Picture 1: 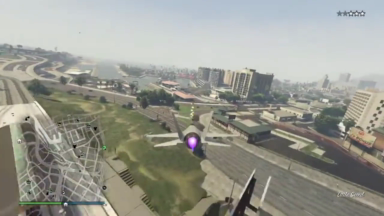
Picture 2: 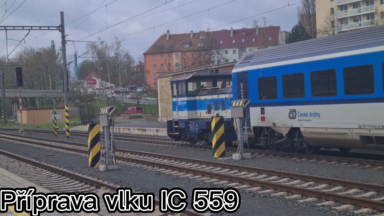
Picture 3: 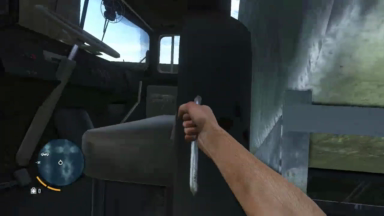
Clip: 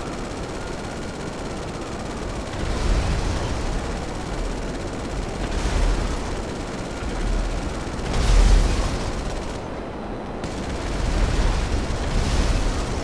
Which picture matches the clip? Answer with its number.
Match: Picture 1